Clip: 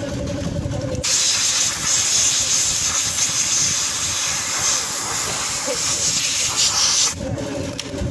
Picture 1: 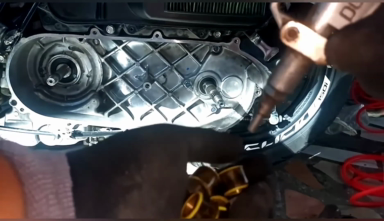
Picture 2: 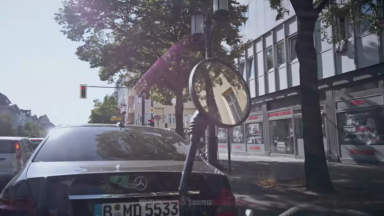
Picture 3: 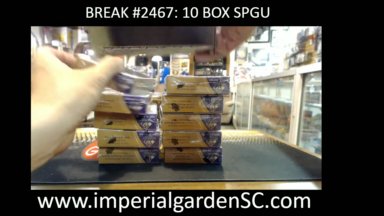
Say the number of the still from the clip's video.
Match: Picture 1